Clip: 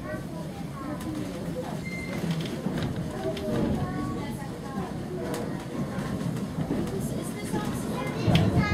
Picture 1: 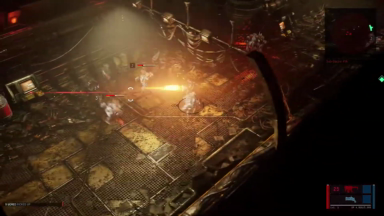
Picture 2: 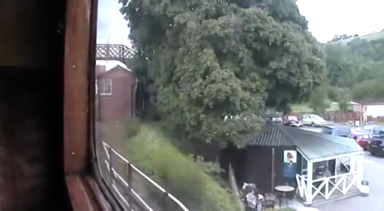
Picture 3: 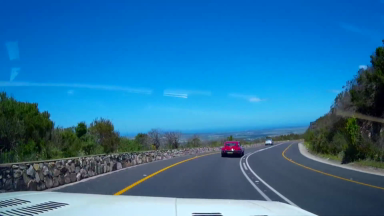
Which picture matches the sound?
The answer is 2